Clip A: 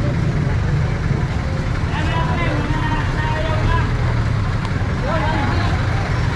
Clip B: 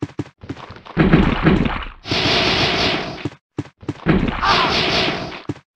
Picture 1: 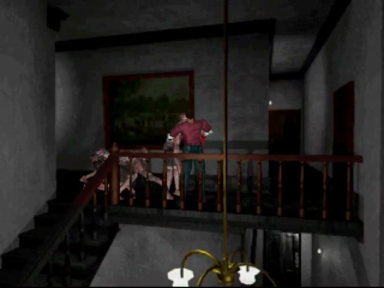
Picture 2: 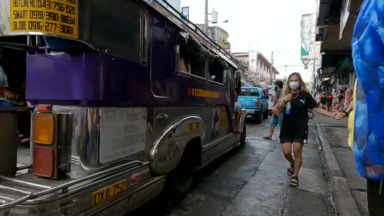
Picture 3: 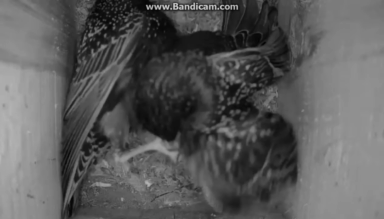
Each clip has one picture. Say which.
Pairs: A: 2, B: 1